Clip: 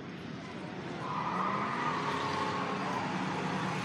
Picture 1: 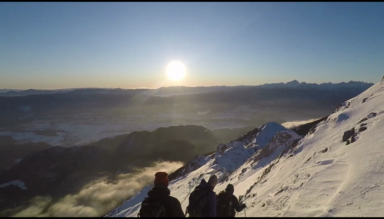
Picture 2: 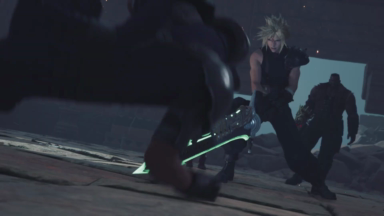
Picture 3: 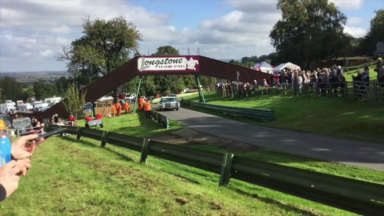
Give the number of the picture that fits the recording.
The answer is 3